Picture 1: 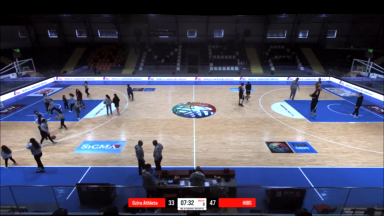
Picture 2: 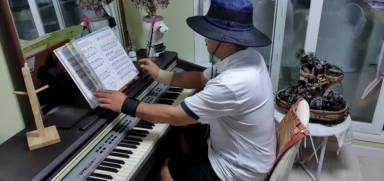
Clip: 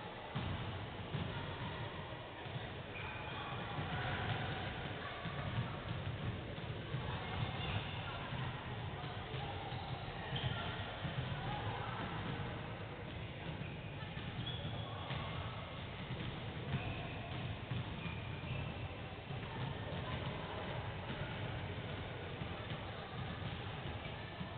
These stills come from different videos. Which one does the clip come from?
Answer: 1